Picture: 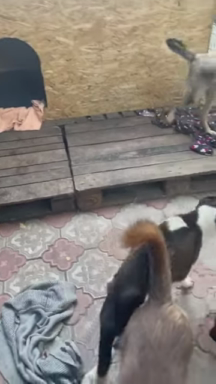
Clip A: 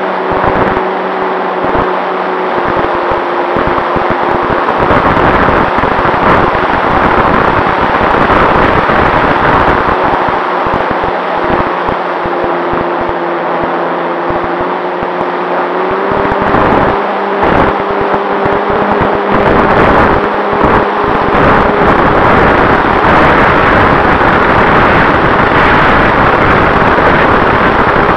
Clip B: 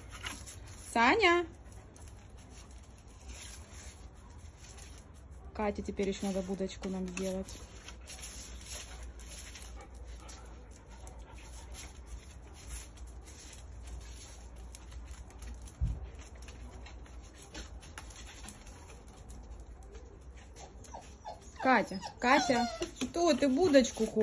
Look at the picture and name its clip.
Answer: B